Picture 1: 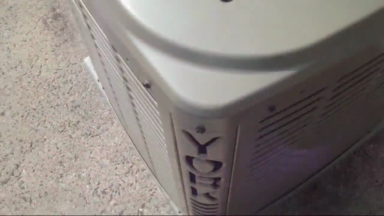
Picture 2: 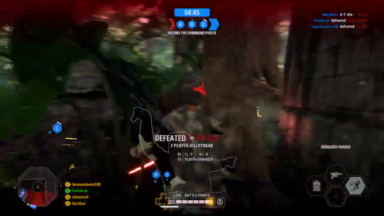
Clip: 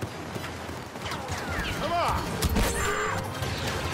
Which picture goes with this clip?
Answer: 2